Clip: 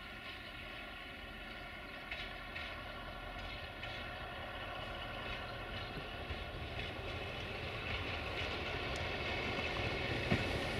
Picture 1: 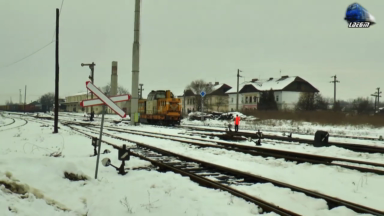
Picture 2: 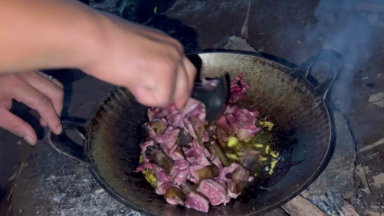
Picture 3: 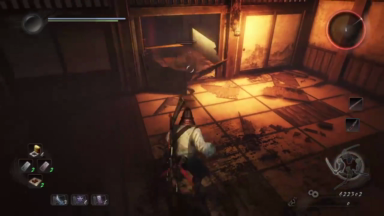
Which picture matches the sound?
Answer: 1